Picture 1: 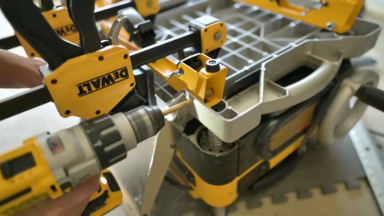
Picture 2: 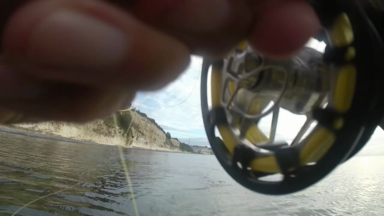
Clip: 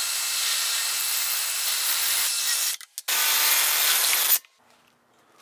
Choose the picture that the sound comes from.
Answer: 1